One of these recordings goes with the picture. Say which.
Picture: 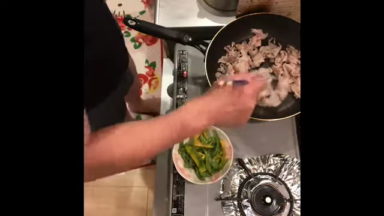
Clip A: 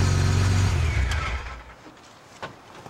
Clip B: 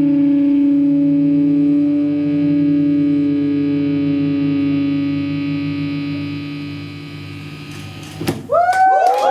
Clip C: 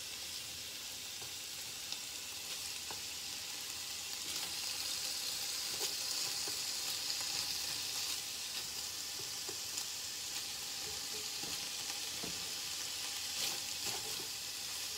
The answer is C